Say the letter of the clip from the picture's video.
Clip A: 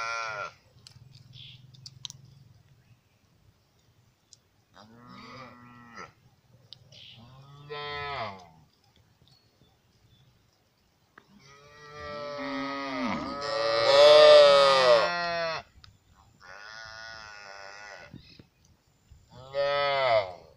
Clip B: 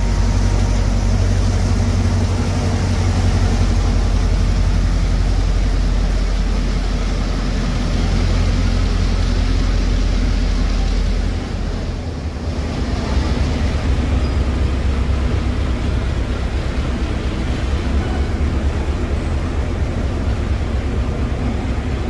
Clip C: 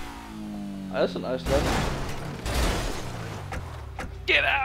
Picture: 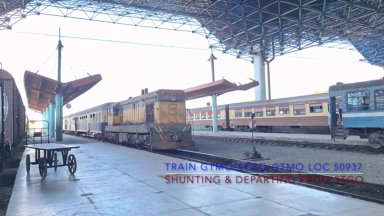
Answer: B